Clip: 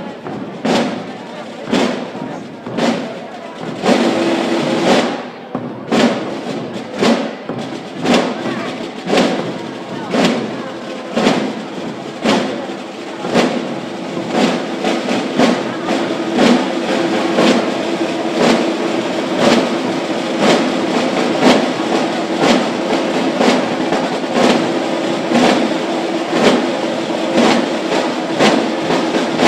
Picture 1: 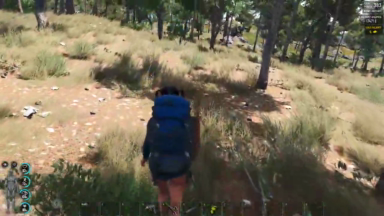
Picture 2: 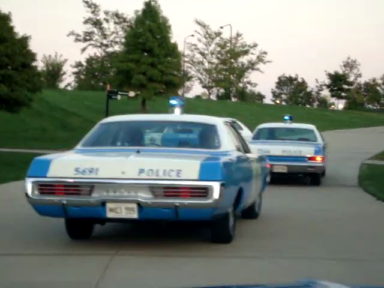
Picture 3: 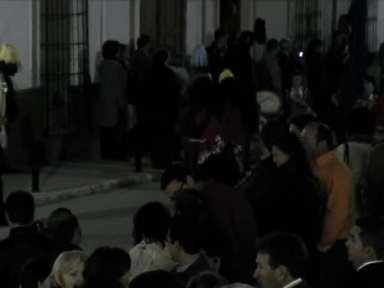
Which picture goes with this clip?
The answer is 3